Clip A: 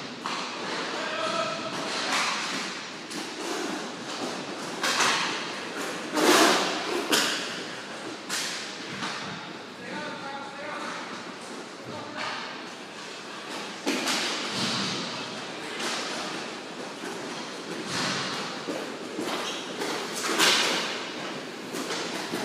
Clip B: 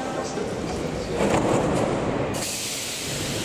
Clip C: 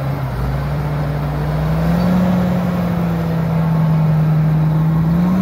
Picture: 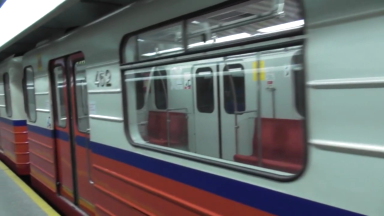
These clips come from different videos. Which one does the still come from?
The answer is B